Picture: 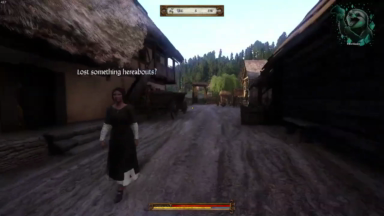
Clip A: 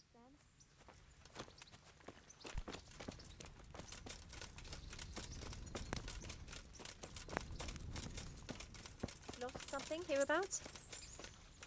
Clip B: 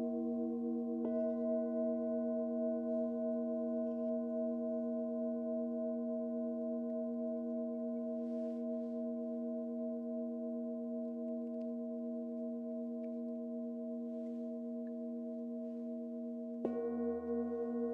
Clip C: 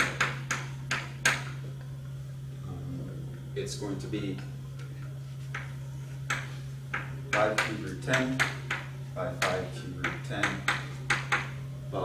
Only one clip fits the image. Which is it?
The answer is A